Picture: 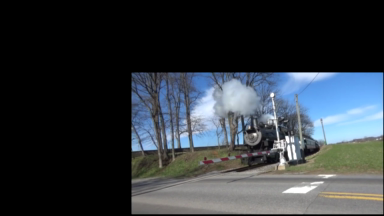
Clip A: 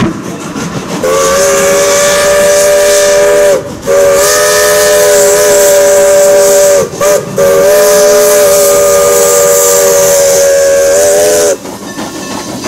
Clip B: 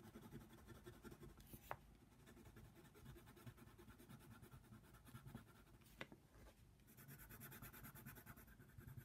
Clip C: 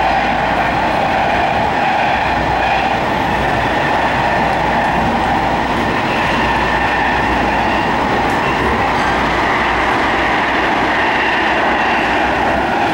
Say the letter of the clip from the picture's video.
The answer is A